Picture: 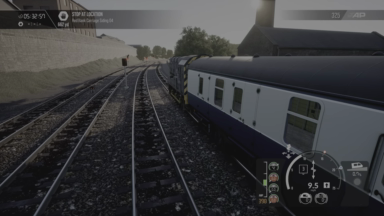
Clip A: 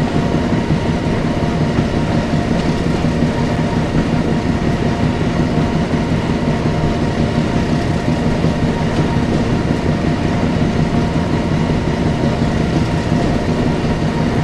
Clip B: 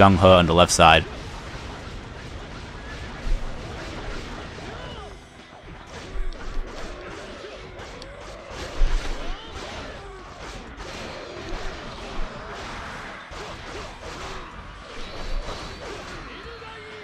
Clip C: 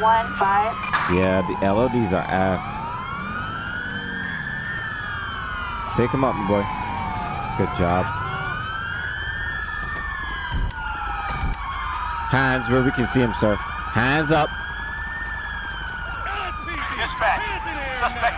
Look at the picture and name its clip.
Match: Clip A